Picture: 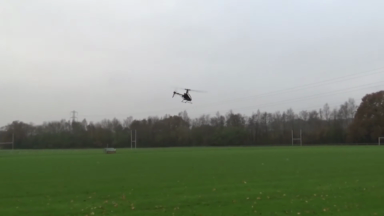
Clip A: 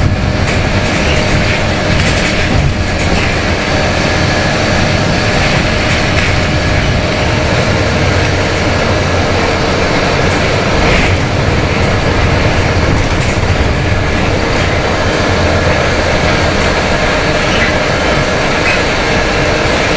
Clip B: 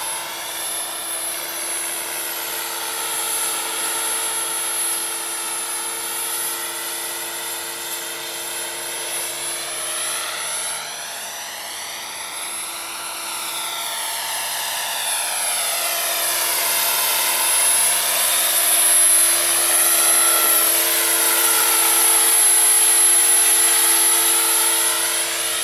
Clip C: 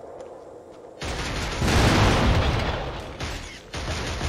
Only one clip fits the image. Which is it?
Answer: B